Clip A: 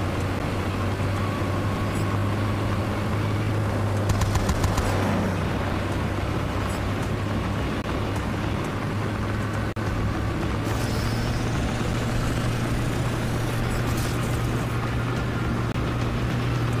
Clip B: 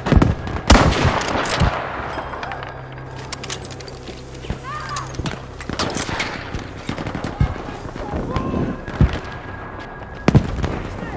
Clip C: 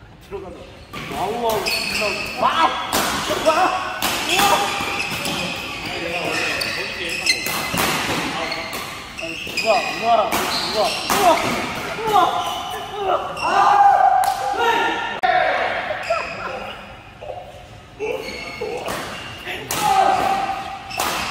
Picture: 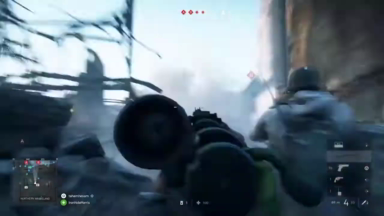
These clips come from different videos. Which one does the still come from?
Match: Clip B